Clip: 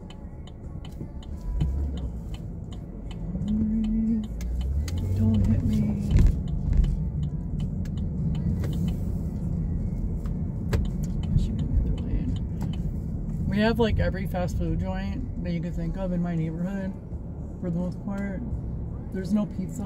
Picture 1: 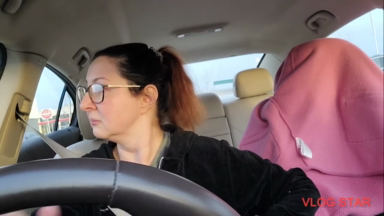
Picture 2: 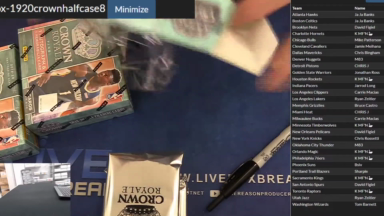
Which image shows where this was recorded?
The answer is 1